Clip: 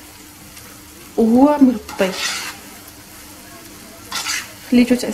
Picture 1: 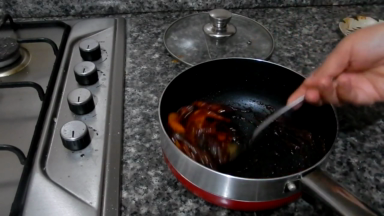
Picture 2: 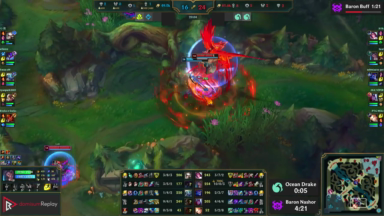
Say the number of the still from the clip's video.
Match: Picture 1